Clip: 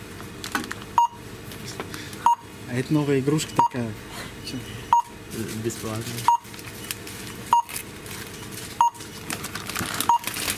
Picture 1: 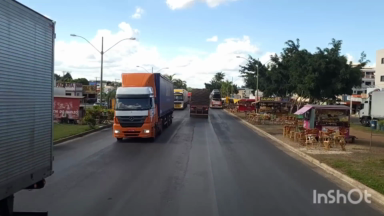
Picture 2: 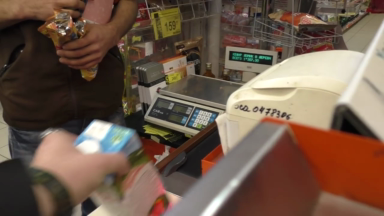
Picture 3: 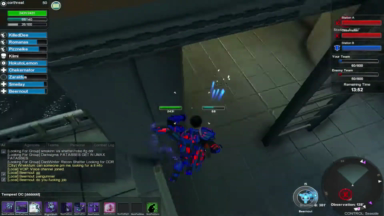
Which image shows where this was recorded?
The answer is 2